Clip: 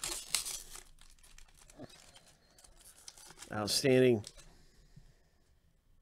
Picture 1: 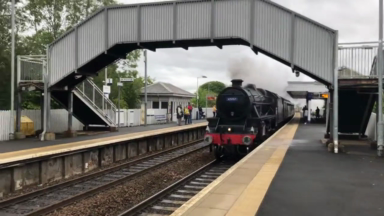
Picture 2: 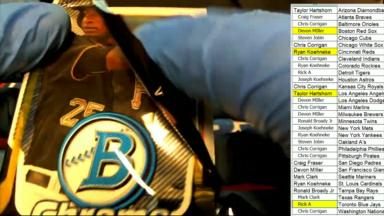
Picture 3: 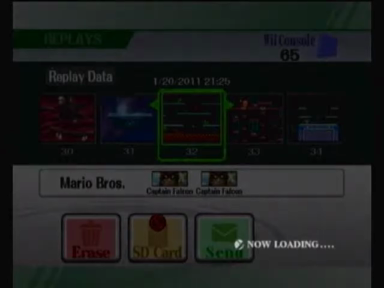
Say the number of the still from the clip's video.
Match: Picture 2